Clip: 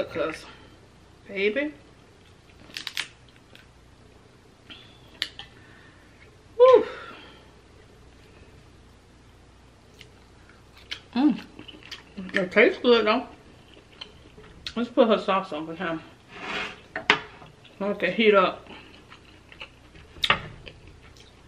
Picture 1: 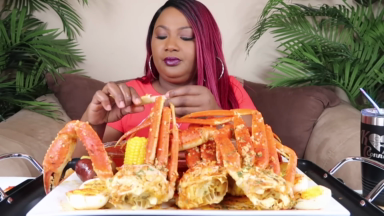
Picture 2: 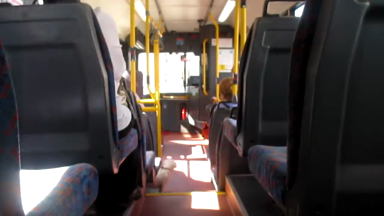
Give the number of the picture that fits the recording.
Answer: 1